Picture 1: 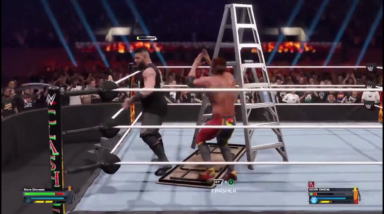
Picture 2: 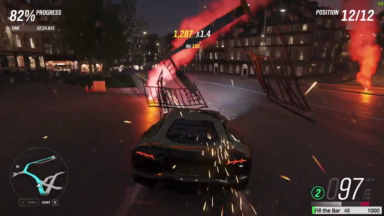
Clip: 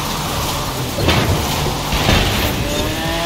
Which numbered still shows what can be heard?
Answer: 2